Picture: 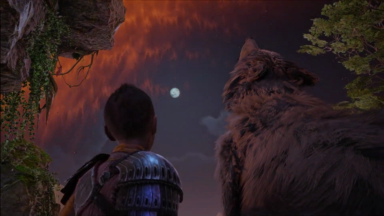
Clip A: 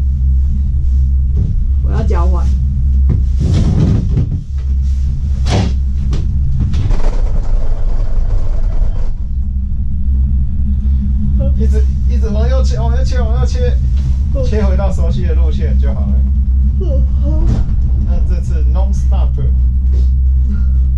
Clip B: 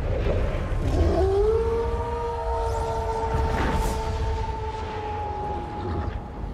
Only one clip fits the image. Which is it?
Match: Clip B